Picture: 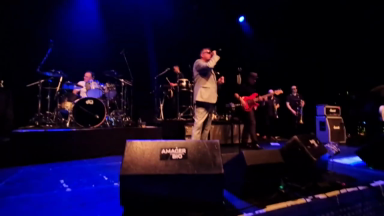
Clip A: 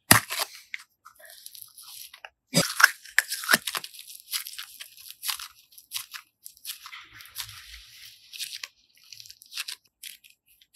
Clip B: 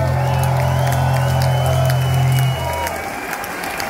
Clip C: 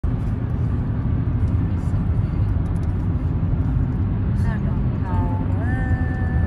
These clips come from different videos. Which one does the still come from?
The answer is B